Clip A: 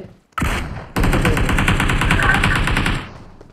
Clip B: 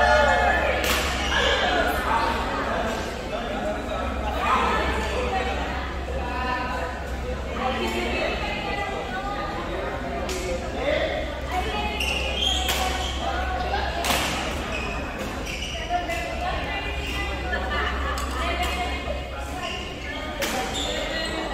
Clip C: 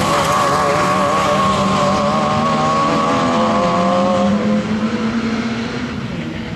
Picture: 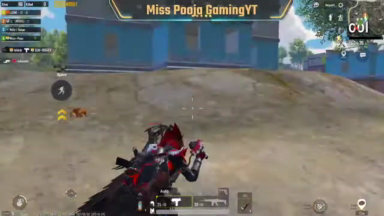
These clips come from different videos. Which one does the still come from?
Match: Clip A